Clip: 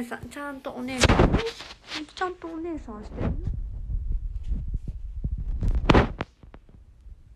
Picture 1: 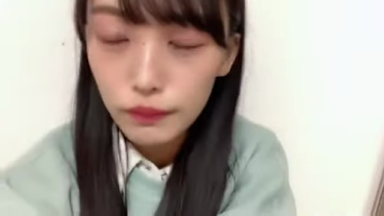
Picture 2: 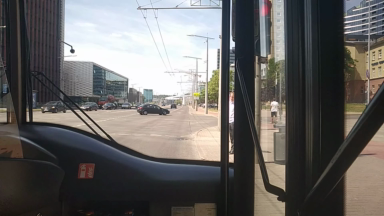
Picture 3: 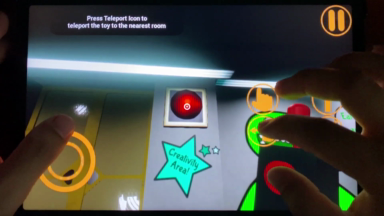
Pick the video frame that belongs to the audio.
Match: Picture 1